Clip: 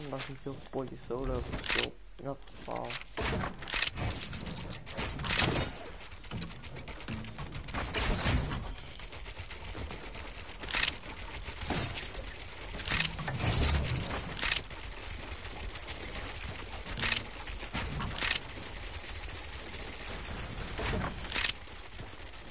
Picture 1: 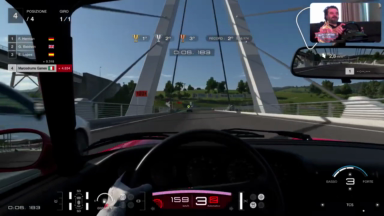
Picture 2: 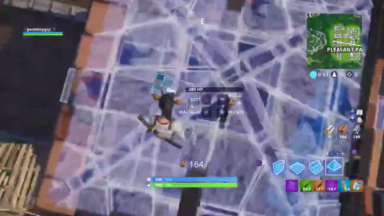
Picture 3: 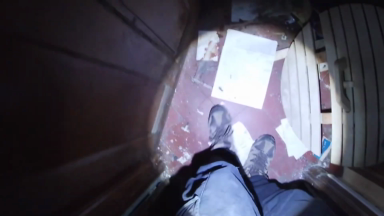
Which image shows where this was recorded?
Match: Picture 2